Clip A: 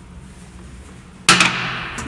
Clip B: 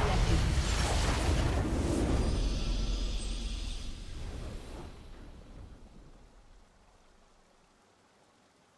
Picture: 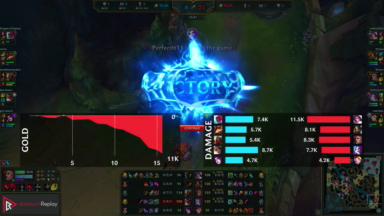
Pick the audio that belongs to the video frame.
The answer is B